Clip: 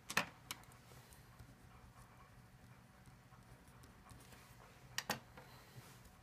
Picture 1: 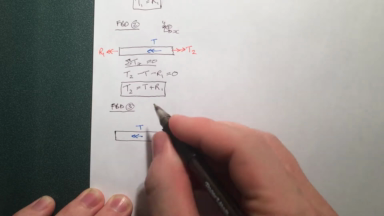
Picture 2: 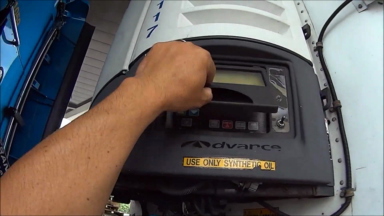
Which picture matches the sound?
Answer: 1